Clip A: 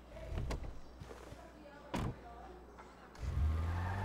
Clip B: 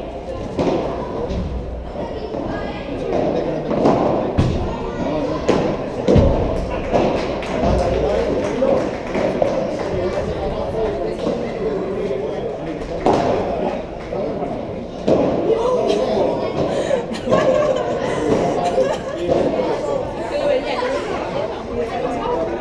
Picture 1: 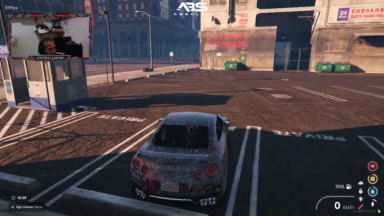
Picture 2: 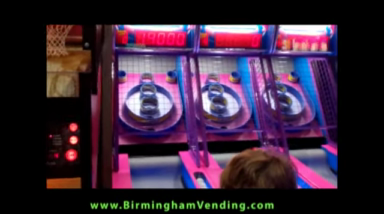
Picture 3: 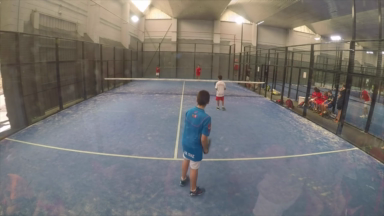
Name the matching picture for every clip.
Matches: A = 1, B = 3